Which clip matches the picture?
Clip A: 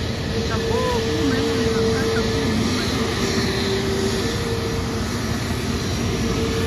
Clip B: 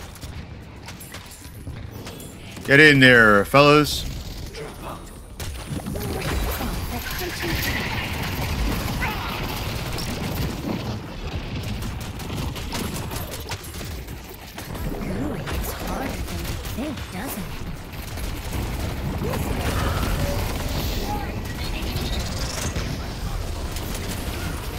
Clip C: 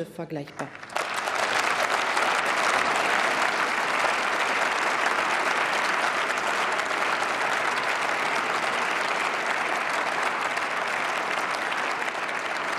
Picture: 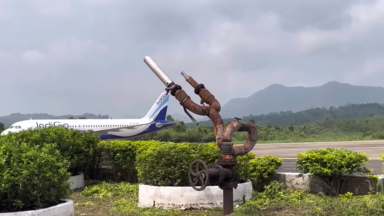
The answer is A